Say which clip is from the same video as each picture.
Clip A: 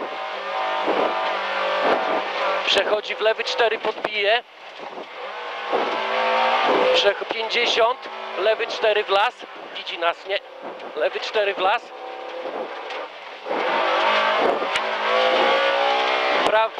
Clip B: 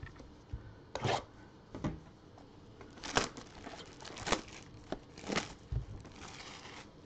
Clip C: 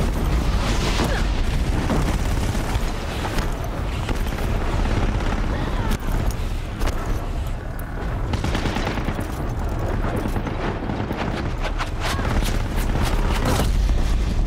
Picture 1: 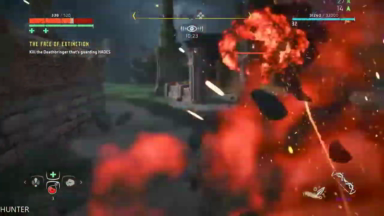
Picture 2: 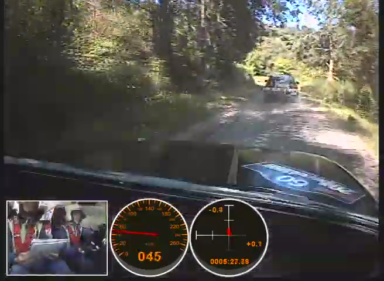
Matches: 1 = C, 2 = A